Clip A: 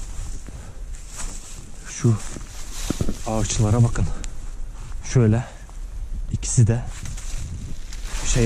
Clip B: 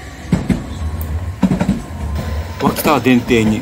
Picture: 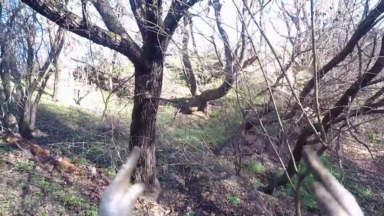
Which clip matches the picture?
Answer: A